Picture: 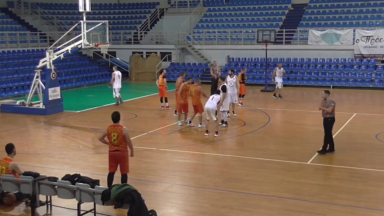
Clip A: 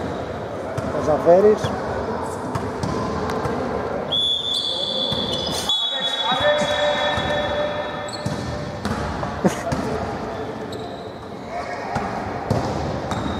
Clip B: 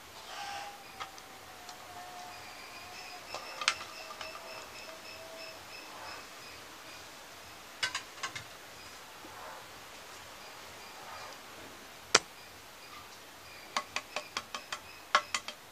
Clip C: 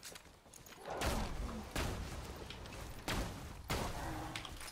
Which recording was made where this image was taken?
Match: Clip A